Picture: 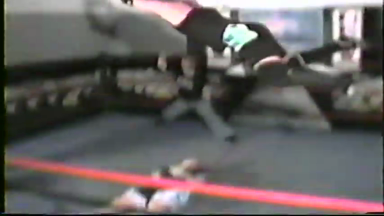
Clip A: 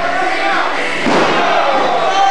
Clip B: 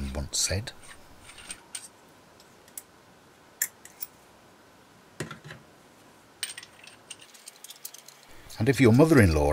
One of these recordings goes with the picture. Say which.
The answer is A